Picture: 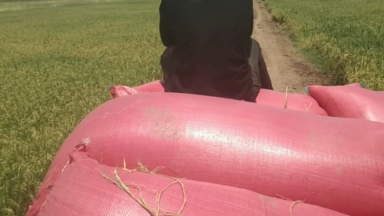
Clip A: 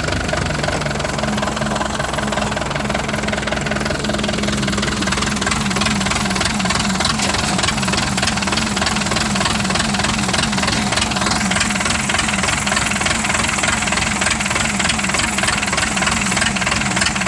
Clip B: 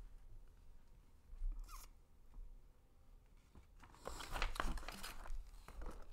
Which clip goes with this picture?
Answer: A